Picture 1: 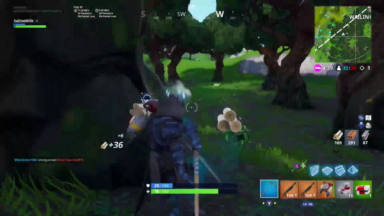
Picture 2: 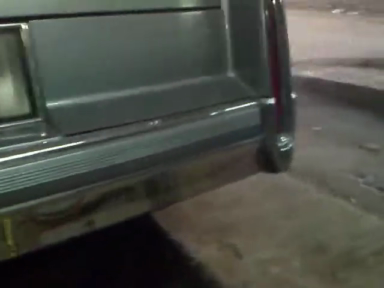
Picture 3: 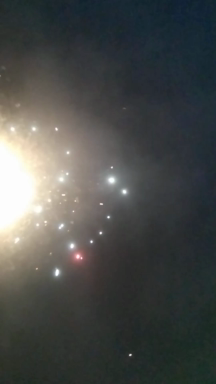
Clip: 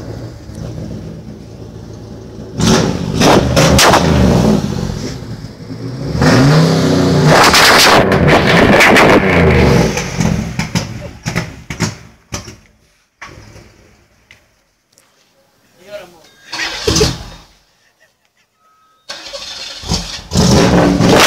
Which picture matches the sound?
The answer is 2